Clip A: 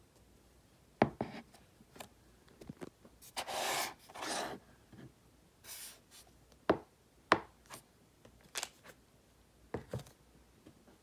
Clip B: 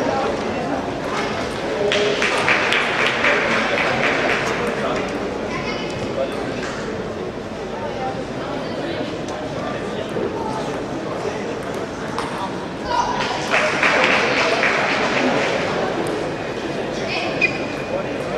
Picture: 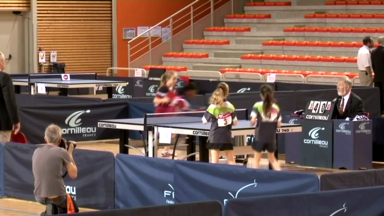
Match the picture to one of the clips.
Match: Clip B